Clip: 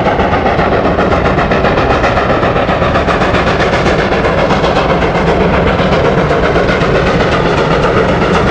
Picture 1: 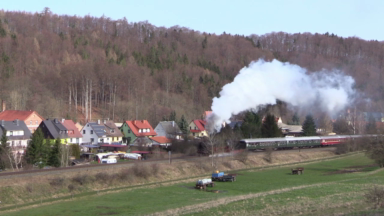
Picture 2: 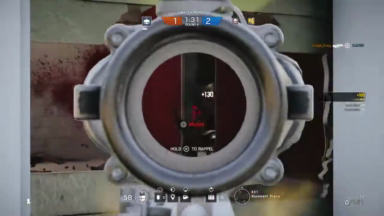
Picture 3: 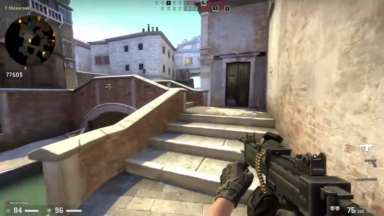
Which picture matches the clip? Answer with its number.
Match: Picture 1